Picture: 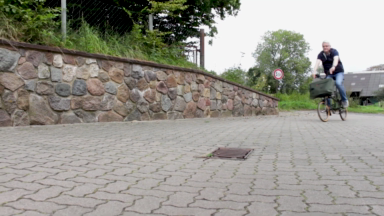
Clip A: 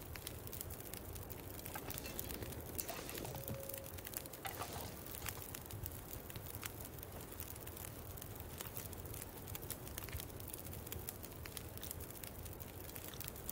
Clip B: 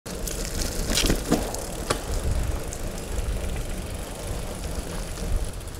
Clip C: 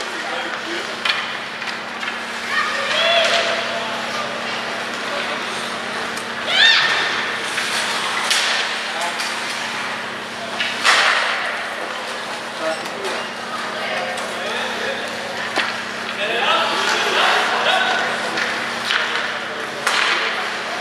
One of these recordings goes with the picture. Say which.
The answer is B